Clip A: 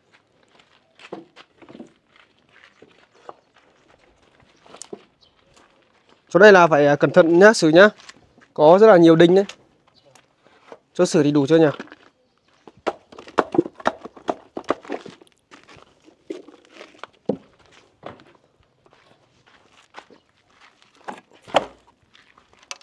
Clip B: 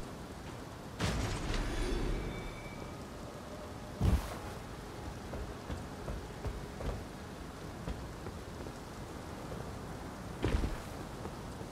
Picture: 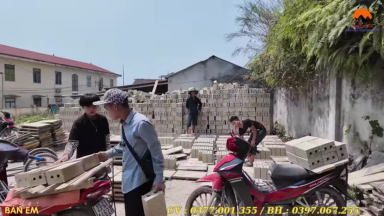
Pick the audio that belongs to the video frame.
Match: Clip A